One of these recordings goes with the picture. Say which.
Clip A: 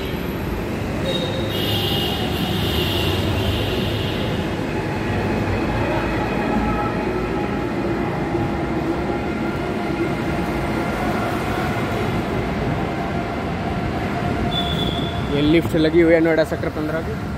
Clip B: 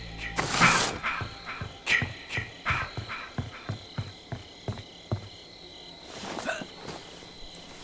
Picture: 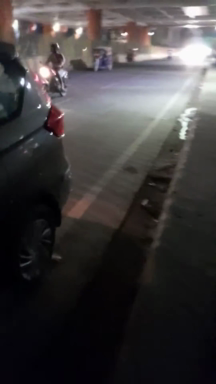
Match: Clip A